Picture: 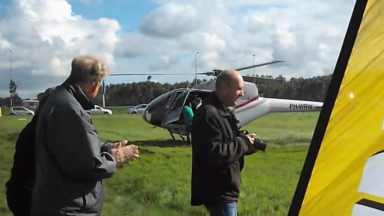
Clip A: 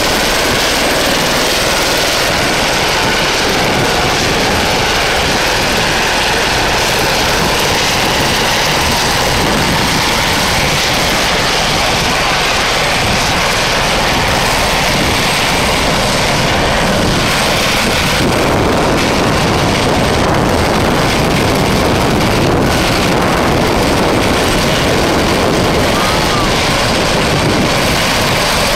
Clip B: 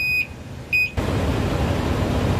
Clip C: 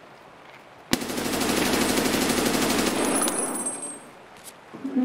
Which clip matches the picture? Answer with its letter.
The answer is A